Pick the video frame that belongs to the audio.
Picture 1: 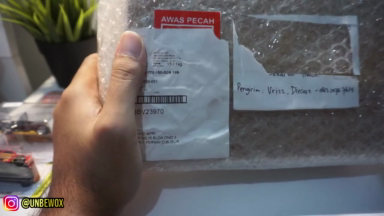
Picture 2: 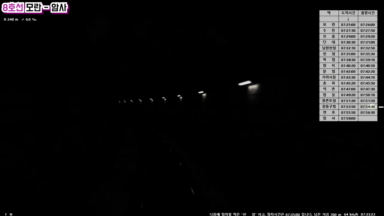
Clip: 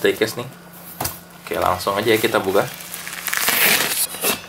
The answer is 1